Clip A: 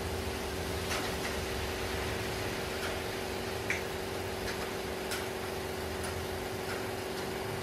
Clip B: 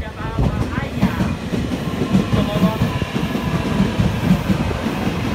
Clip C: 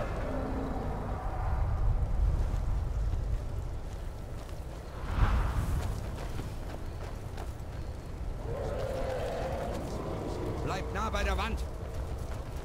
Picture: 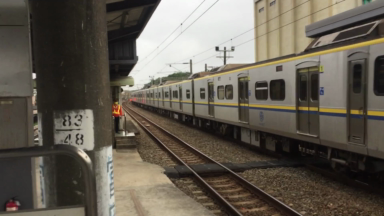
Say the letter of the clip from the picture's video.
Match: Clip B